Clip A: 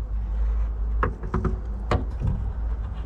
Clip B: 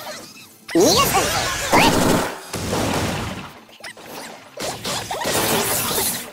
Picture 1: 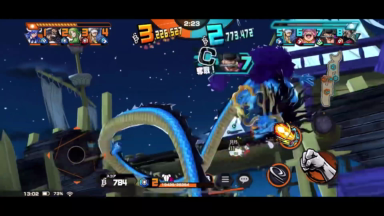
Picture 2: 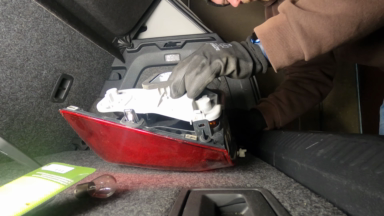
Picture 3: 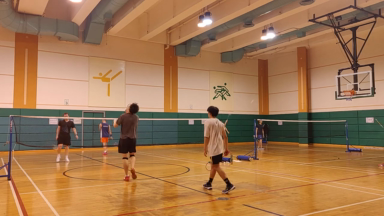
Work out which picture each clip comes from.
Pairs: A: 2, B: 1